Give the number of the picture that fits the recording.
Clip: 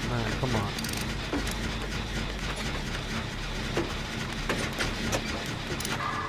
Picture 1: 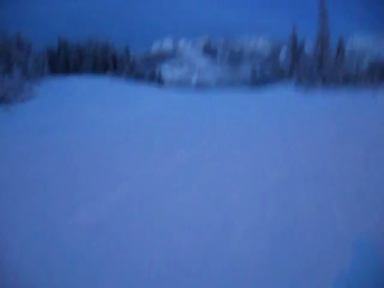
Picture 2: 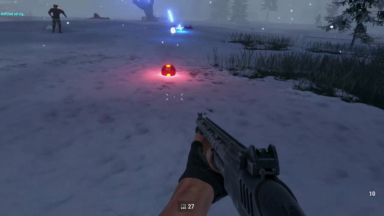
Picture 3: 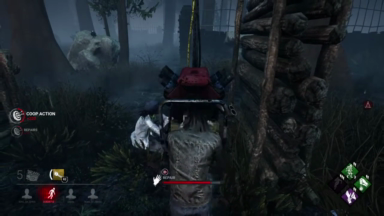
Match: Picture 3